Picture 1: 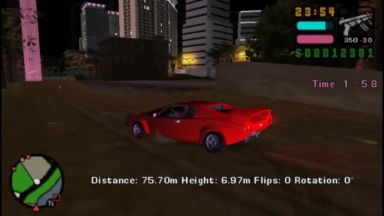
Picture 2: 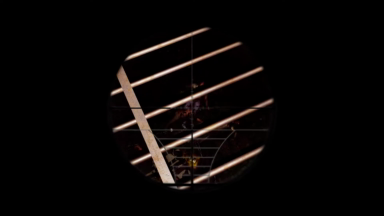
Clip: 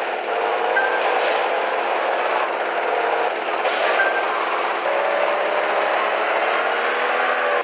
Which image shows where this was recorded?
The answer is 1